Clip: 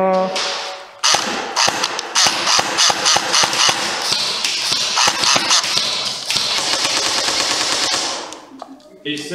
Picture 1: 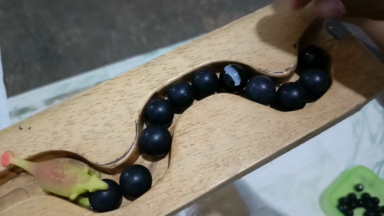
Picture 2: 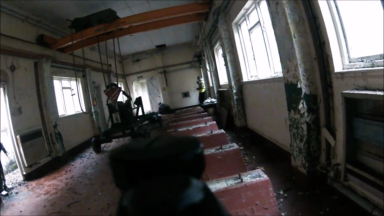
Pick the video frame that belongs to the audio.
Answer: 2